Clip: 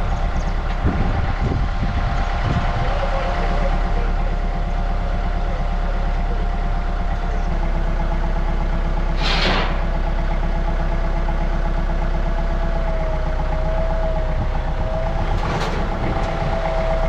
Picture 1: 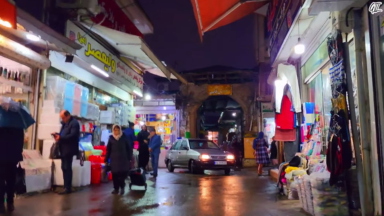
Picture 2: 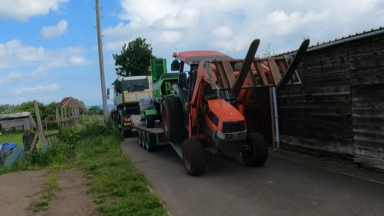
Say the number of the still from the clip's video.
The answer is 2